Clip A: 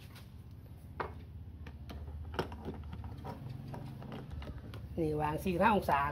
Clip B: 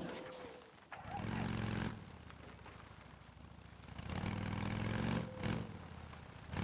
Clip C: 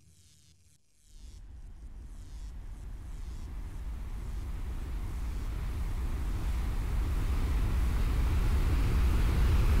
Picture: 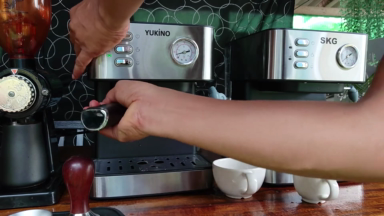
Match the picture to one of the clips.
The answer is A